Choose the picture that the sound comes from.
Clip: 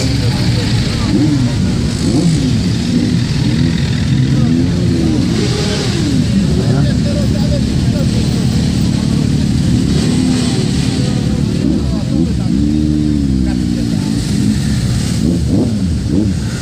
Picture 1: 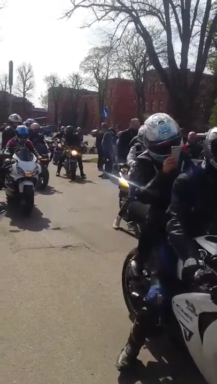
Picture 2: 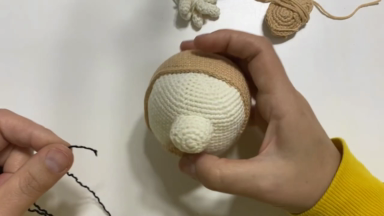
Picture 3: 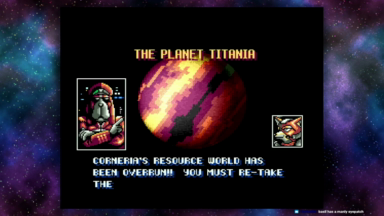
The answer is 1